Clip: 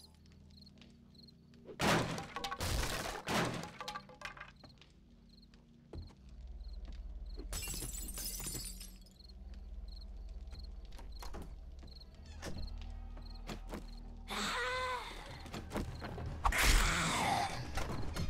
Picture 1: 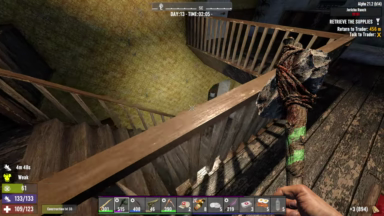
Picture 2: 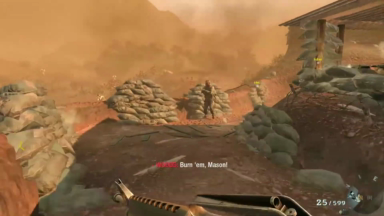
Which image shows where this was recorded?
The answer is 1